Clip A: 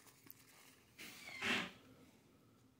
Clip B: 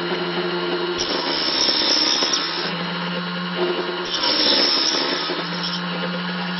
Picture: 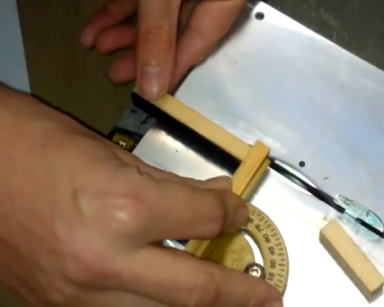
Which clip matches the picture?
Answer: B